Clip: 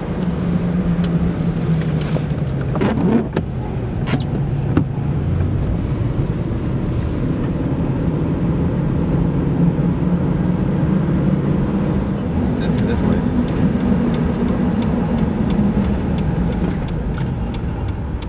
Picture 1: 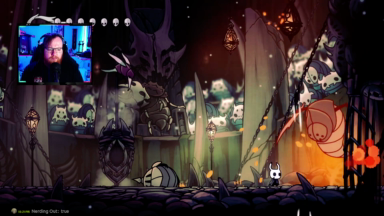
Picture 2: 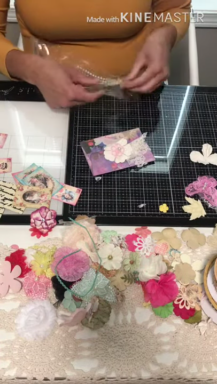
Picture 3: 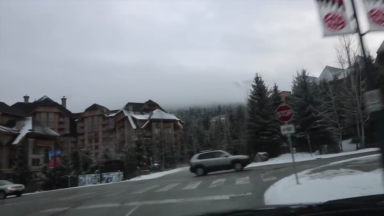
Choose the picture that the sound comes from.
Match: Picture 3